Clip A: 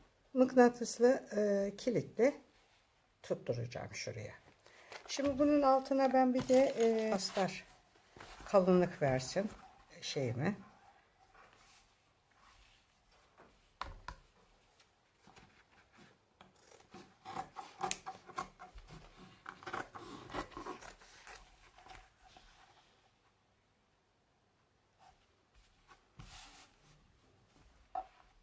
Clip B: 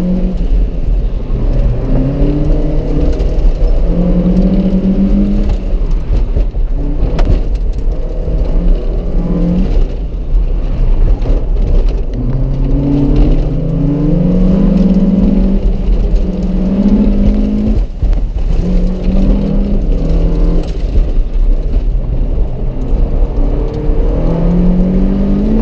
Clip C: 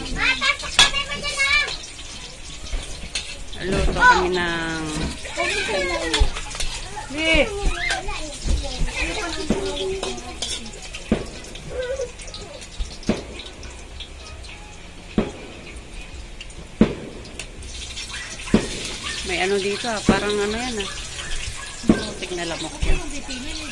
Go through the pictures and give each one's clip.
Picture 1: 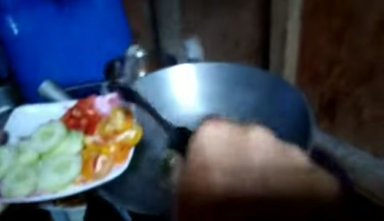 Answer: C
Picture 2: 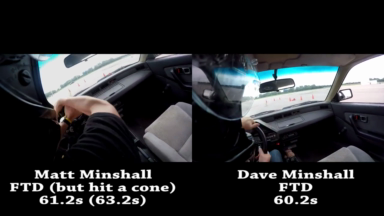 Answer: B